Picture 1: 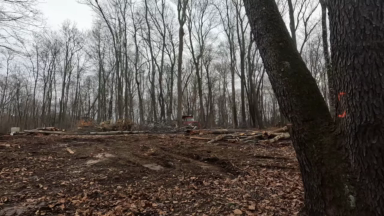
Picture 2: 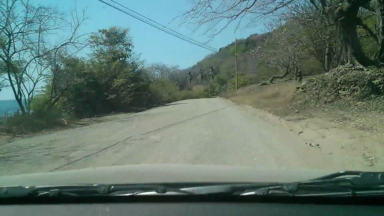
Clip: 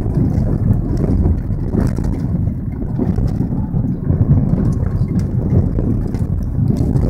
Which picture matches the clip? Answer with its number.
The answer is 2